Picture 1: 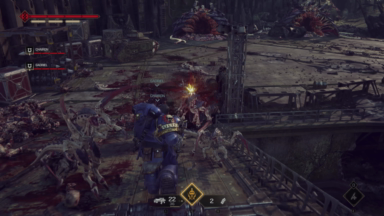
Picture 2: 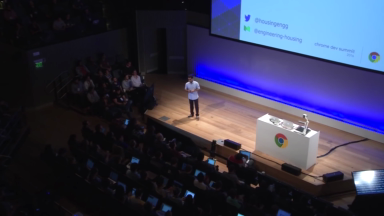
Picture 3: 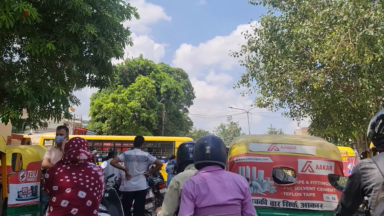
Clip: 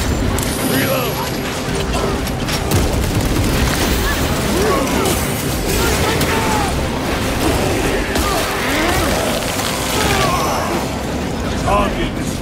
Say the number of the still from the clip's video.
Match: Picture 1